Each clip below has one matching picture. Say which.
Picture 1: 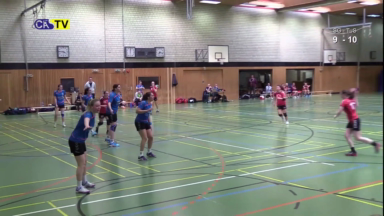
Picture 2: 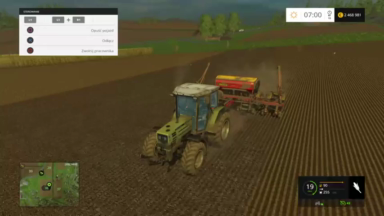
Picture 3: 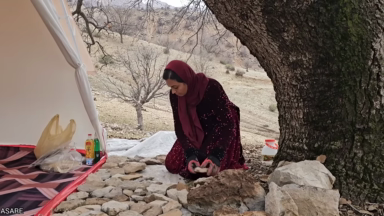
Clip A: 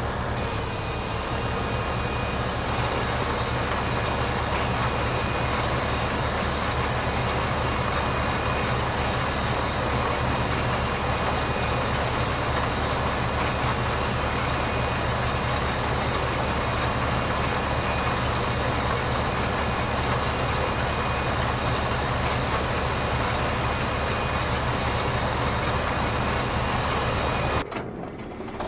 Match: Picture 2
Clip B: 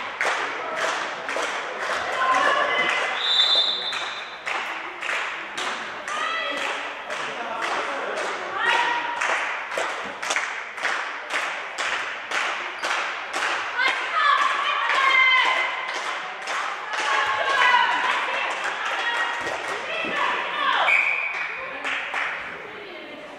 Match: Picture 1